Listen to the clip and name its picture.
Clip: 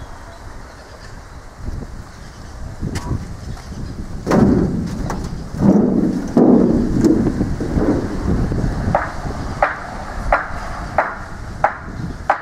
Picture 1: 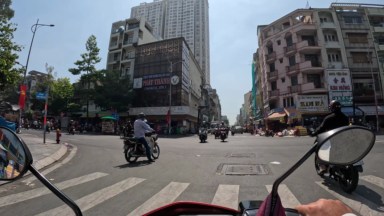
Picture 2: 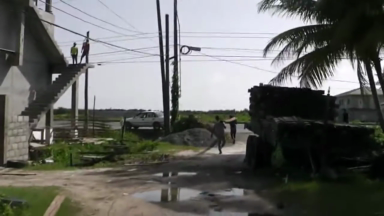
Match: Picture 2